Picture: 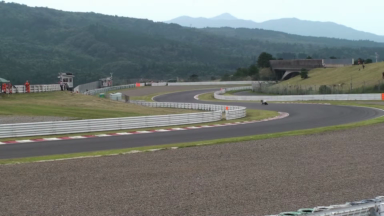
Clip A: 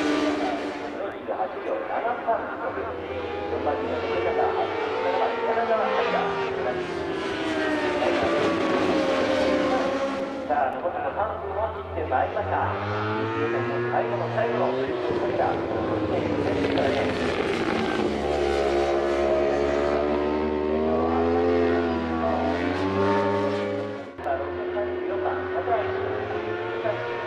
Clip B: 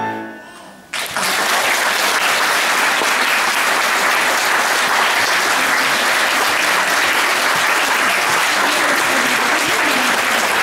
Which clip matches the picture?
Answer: A